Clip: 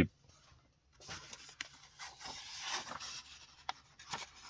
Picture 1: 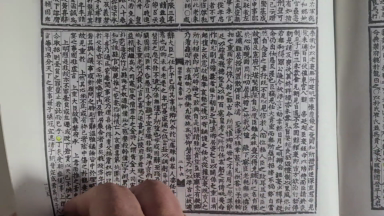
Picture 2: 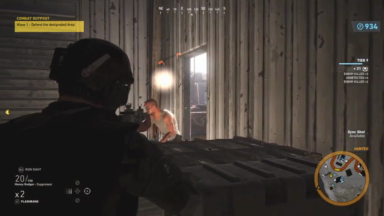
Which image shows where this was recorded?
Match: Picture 1